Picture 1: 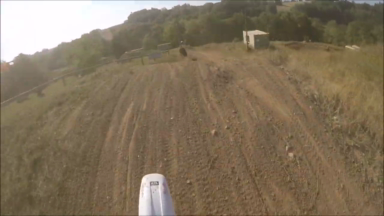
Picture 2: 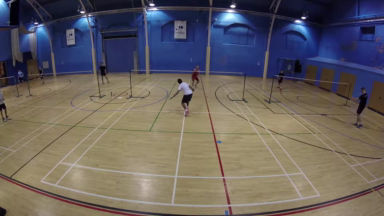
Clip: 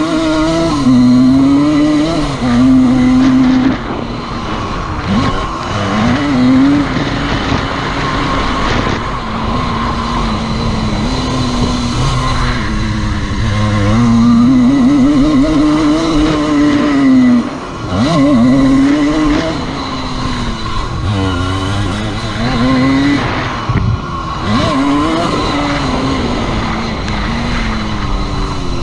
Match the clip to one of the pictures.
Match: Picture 1